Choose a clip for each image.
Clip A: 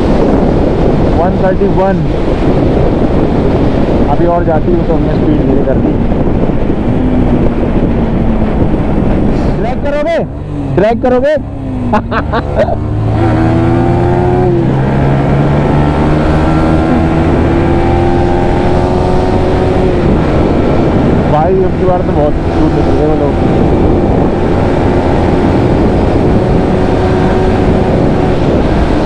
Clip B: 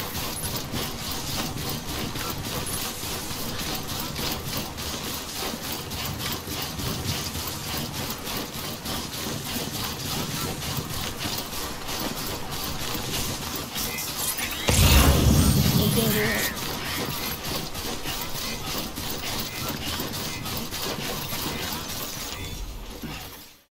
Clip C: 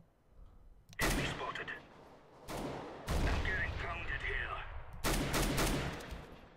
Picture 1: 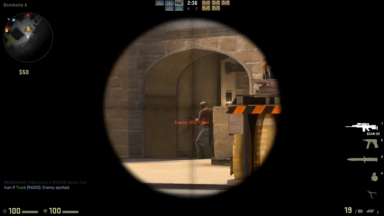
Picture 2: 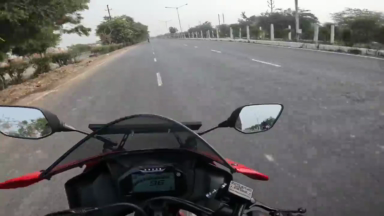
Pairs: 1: C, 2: A